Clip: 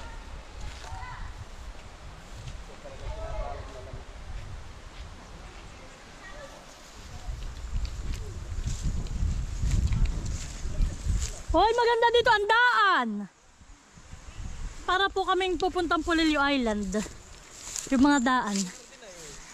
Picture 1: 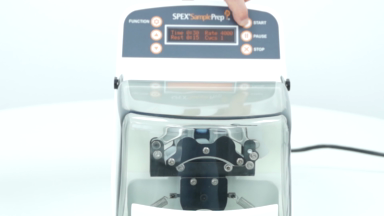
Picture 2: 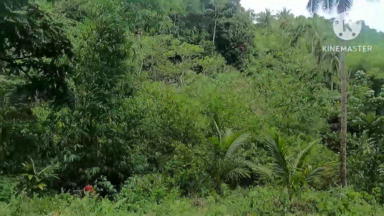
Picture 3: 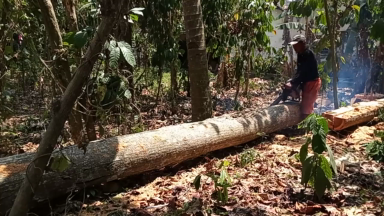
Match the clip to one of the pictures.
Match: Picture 2